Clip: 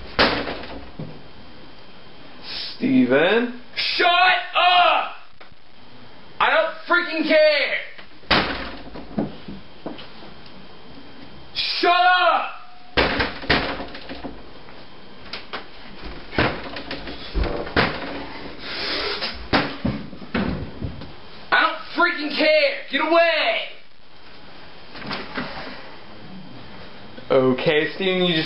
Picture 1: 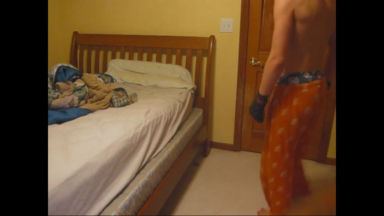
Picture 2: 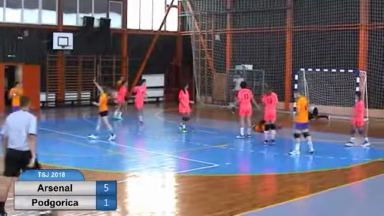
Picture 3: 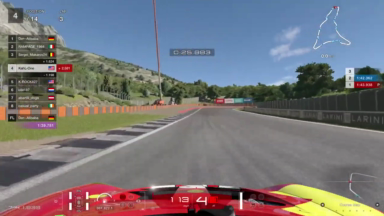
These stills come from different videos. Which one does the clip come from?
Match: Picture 1